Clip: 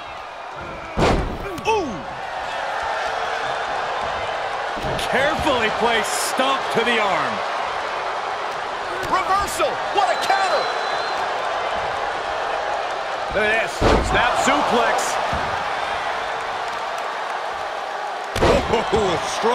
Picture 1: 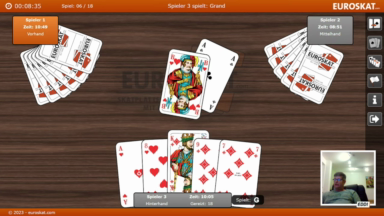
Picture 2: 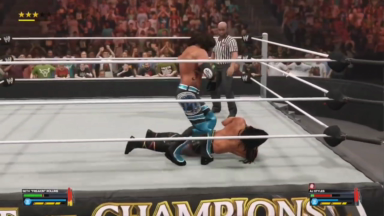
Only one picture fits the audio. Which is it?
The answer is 2